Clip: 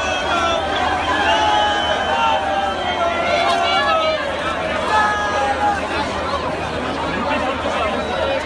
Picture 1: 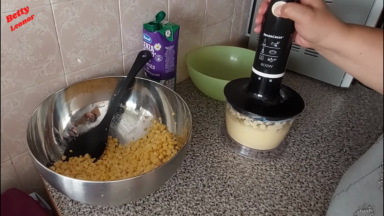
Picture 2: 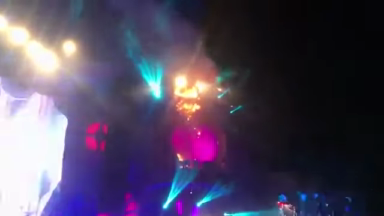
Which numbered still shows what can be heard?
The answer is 2